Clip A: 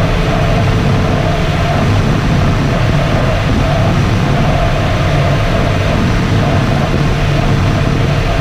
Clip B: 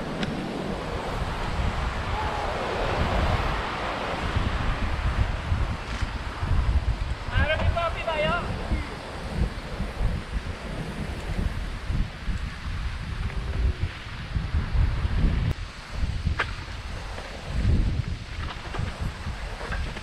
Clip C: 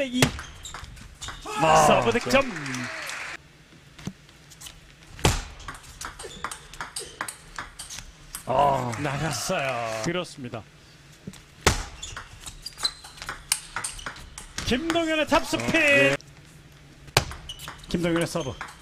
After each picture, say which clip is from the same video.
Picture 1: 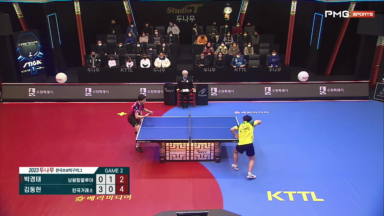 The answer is C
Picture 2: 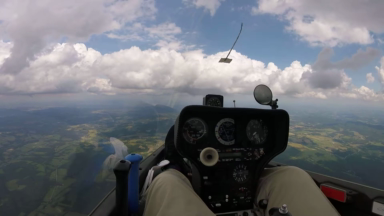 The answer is A